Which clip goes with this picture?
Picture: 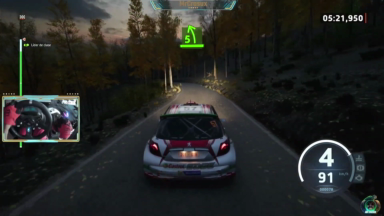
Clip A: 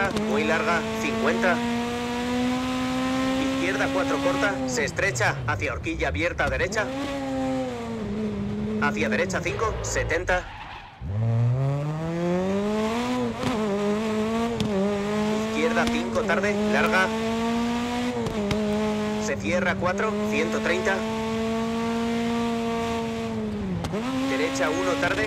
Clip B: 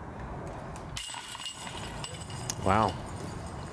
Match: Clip A